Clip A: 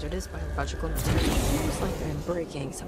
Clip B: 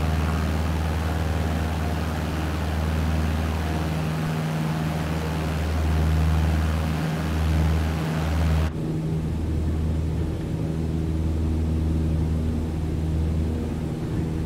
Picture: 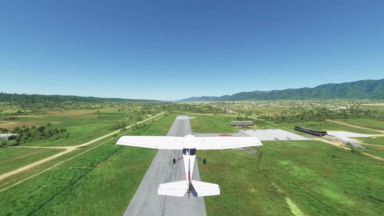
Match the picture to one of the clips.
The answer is B